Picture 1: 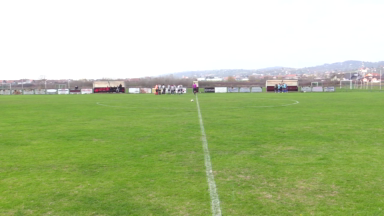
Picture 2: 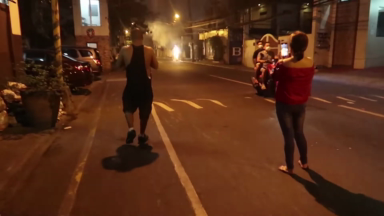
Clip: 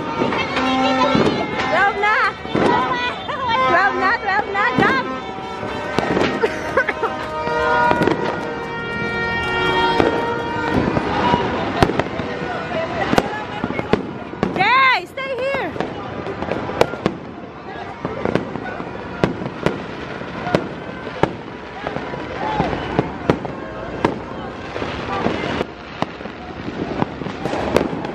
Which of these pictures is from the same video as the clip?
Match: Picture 2